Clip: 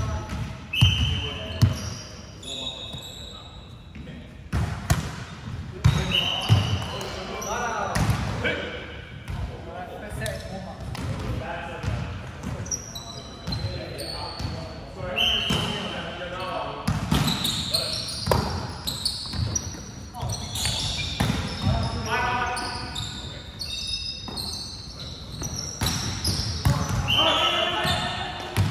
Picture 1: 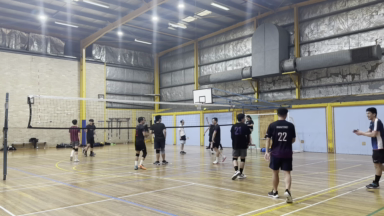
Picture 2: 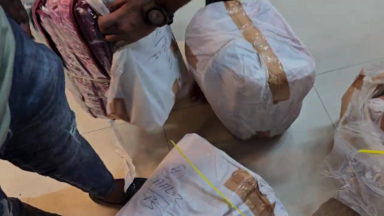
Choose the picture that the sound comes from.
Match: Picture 1